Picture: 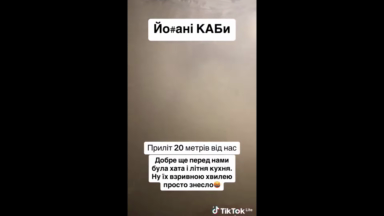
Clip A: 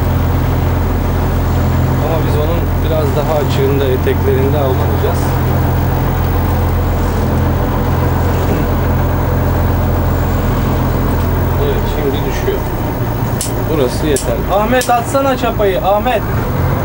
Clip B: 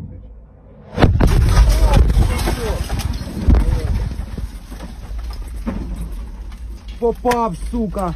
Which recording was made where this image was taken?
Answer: B